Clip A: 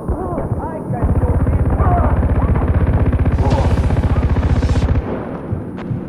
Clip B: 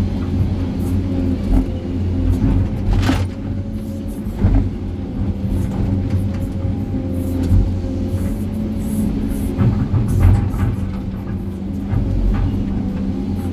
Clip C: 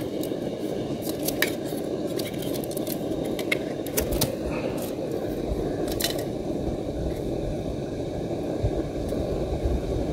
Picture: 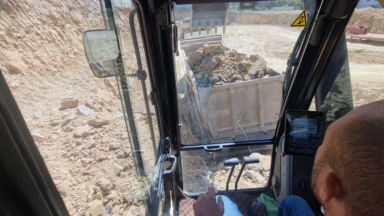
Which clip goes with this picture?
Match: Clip B